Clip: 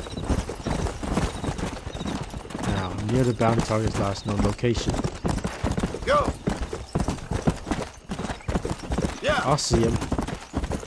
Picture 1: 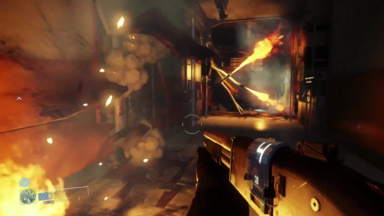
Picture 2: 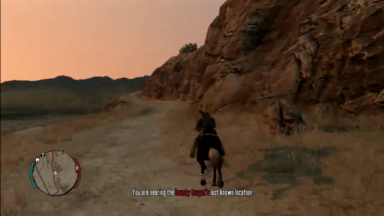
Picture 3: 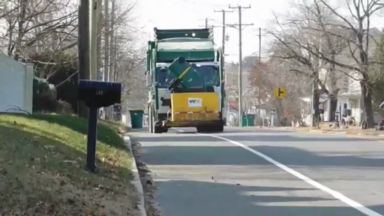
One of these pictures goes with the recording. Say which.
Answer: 2